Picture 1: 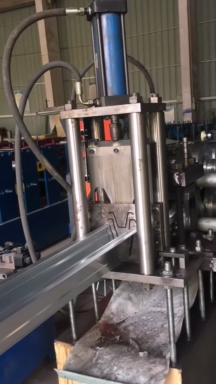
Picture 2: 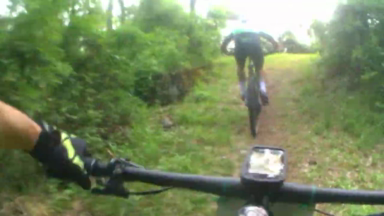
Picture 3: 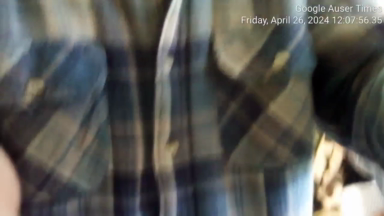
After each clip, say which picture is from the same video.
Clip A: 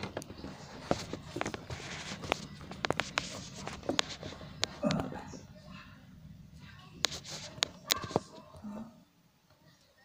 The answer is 3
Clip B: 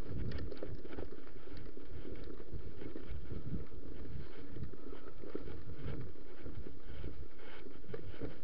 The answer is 2